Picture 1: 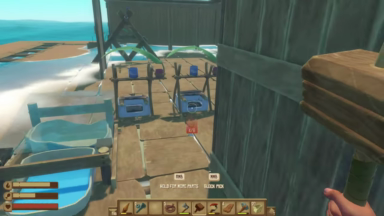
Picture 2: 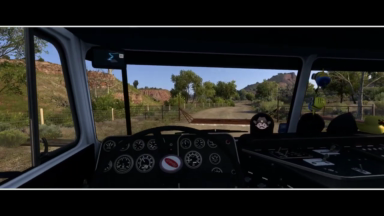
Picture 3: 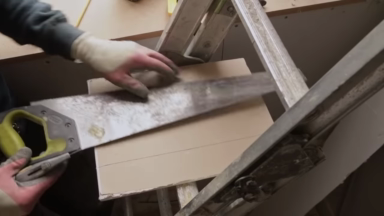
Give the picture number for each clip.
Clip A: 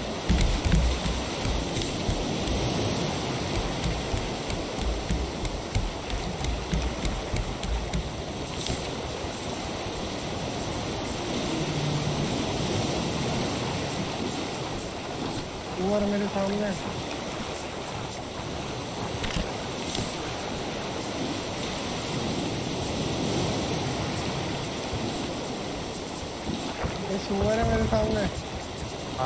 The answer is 1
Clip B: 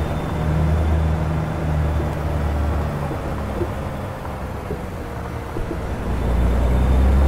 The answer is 2